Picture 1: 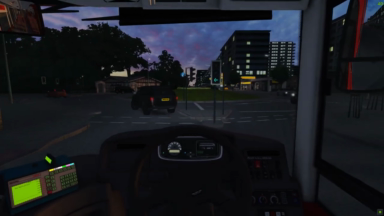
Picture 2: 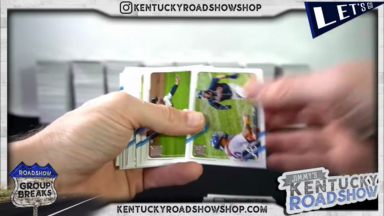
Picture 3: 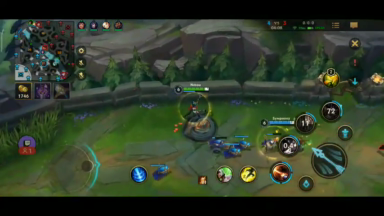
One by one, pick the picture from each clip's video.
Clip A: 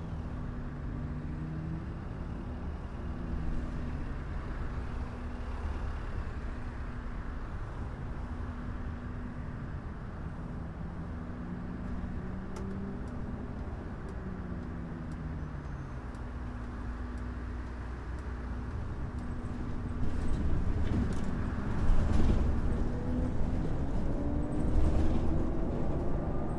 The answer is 1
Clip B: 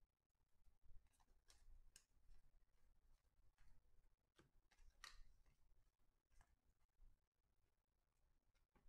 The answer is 2